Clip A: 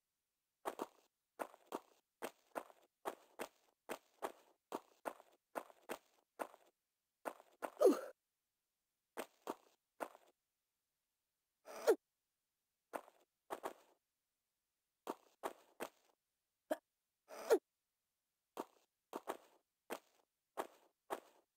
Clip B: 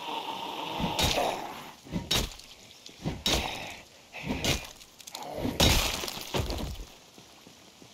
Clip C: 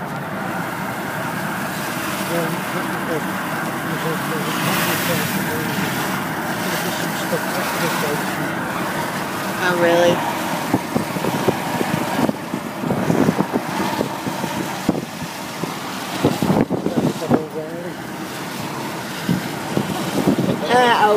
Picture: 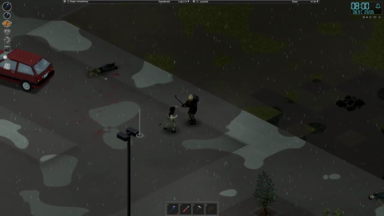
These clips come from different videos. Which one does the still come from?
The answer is B